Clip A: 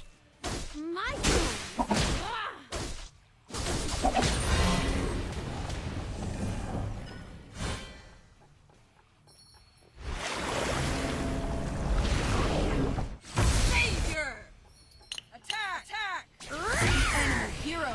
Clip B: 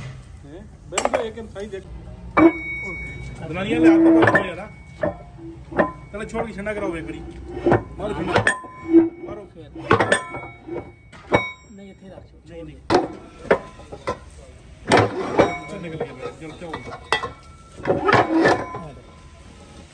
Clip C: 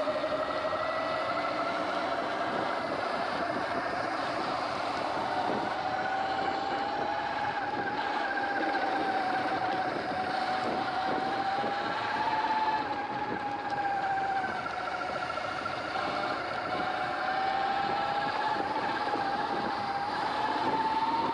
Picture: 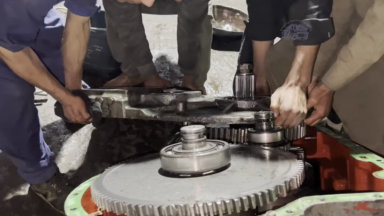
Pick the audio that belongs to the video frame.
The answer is B